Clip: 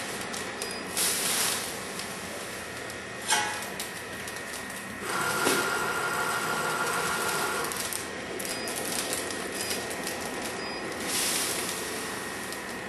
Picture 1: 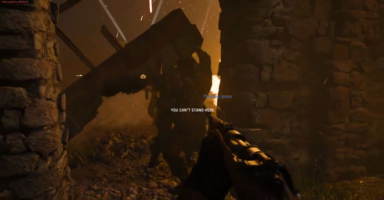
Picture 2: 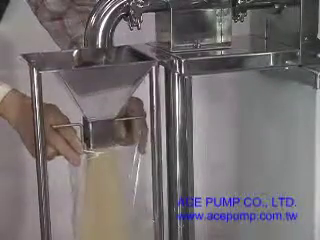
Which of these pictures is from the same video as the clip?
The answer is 2